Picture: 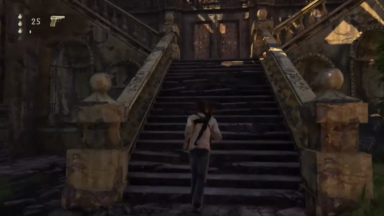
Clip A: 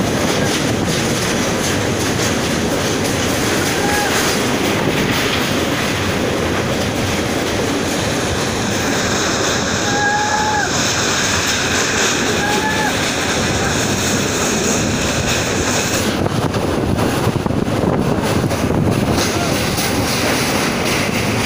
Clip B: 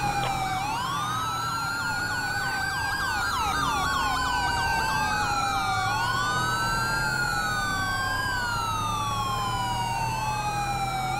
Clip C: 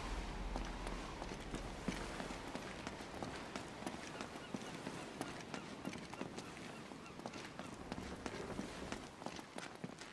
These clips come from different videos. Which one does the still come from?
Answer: C